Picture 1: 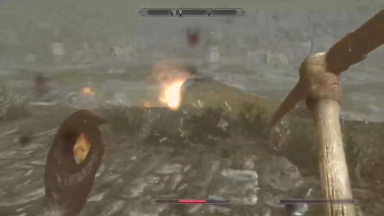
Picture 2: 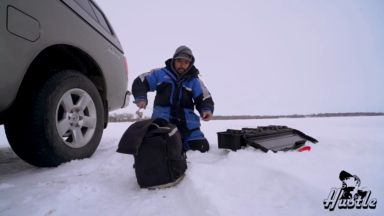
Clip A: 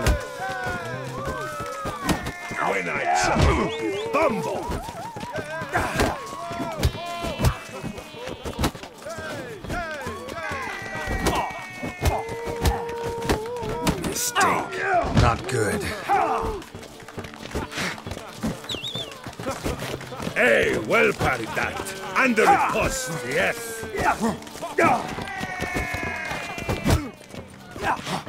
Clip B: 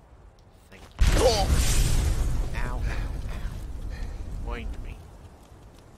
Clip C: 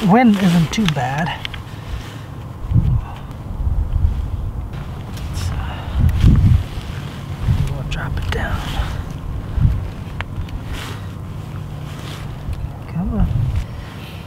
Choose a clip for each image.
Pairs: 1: B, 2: C